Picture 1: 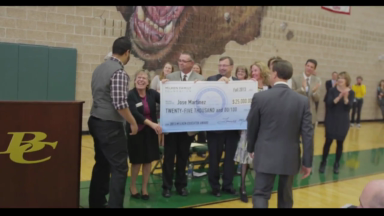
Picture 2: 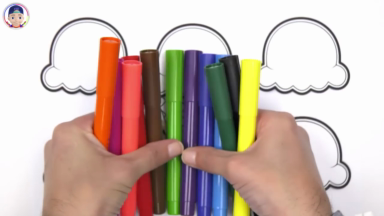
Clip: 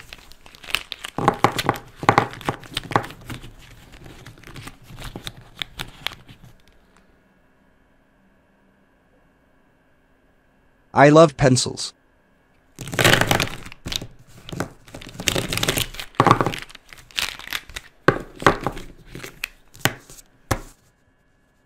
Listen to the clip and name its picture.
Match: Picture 2